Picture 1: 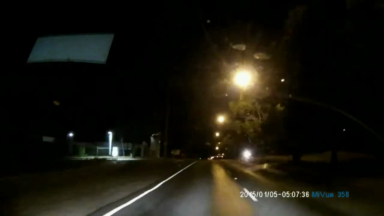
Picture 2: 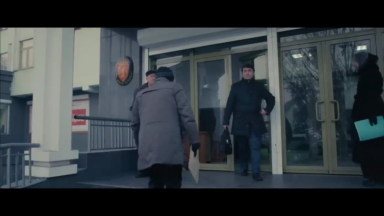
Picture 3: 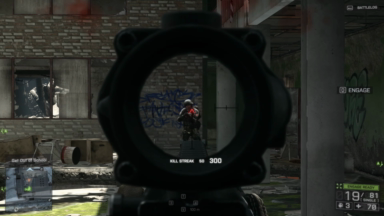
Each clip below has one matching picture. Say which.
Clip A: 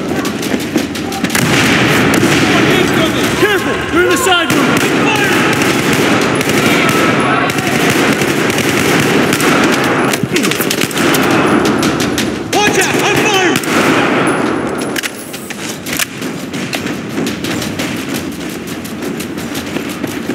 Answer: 3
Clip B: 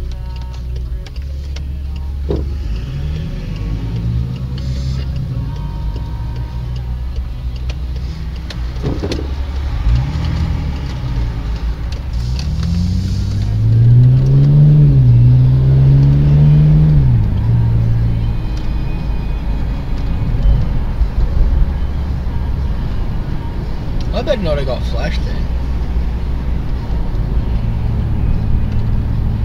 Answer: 1